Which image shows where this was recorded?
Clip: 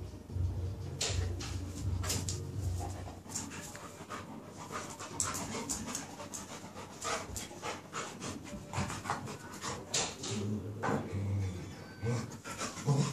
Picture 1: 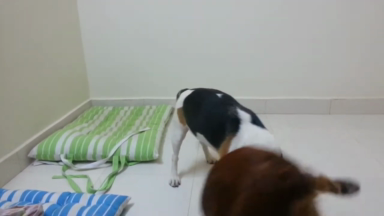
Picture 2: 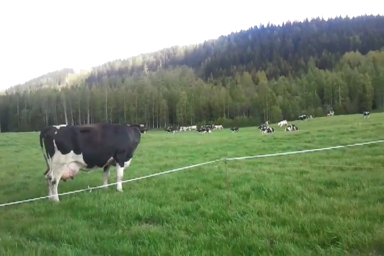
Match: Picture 1